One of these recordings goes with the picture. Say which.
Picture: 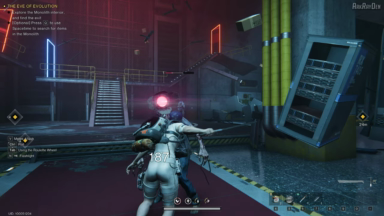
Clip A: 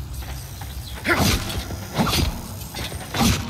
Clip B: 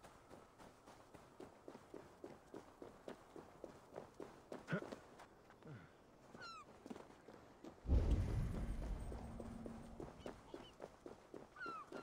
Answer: A